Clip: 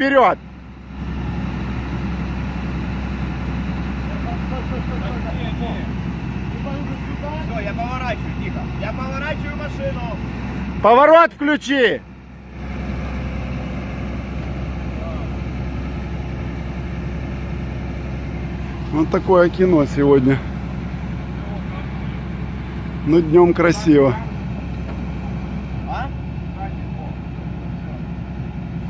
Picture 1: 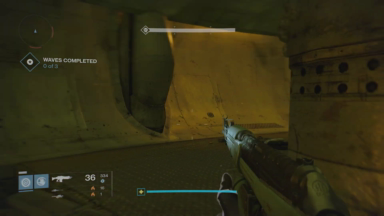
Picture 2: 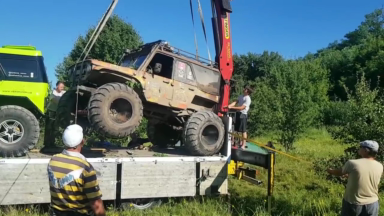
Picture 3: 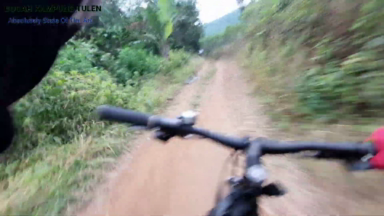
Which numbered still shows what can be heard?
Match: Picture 2